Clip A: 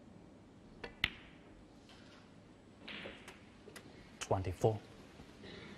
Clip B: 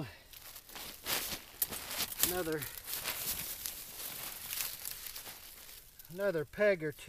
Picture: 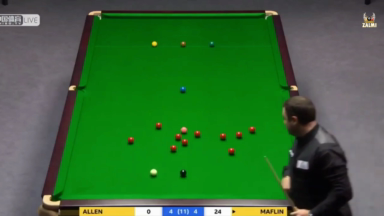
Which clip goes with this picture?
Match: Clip A